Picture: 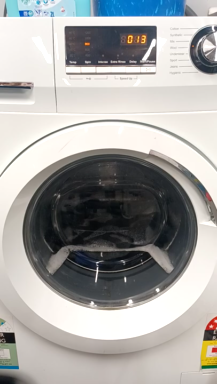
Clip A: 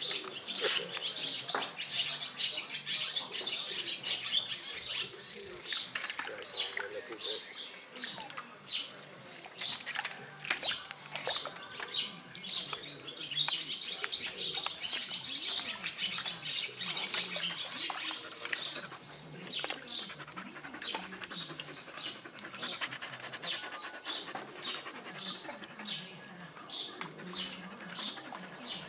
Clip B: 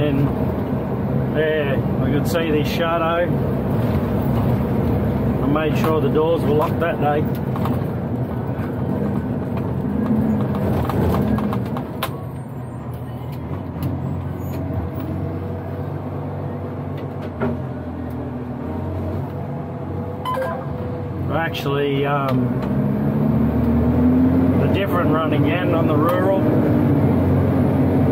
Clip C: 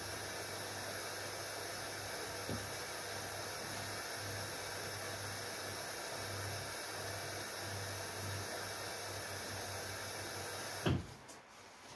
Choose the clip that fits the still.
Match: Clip C